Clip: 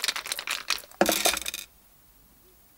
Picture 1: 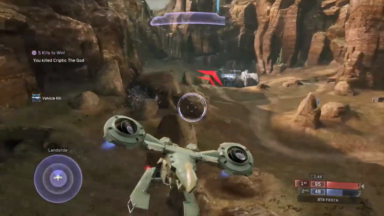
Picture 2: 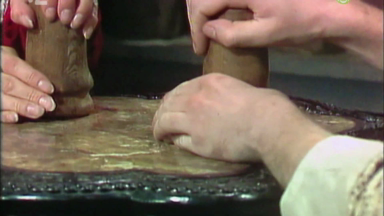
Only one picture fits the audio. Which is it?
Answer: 2